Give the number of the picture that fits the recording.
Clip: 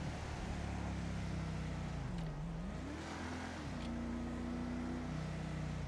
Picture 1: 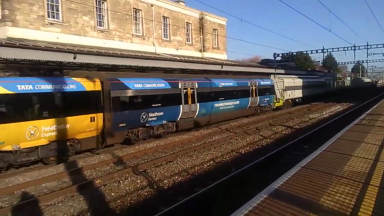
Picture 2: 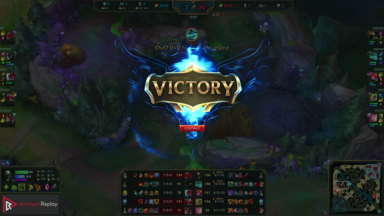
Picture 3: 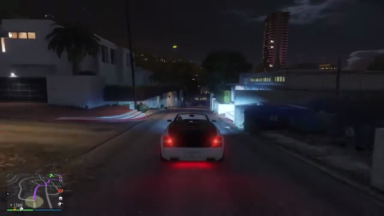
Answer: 3